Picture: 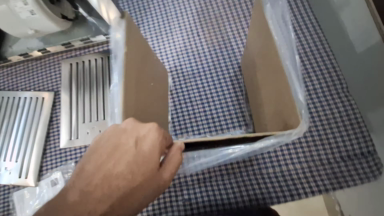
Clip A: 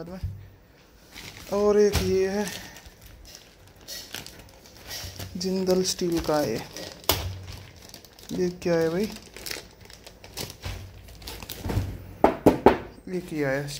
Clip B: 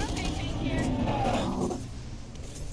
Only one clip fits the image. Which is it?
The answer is A